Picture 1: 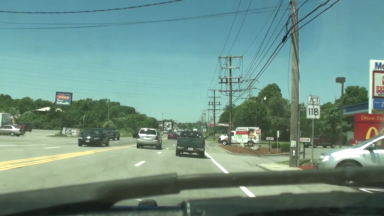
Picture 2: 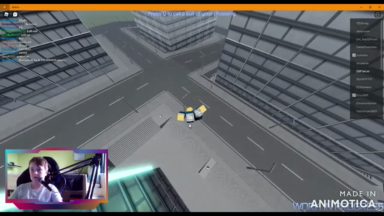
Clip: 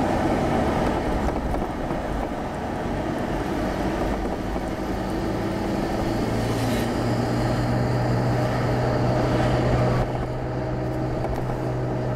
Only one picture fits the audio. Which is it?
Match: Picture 1